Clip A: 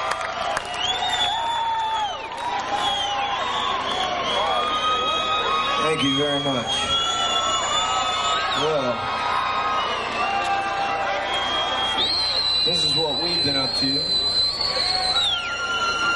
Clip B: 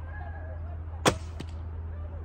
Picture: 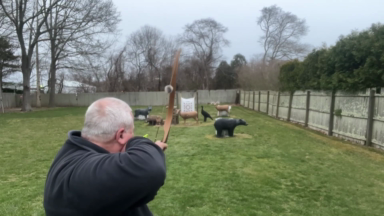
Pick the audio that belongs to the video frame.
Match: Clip B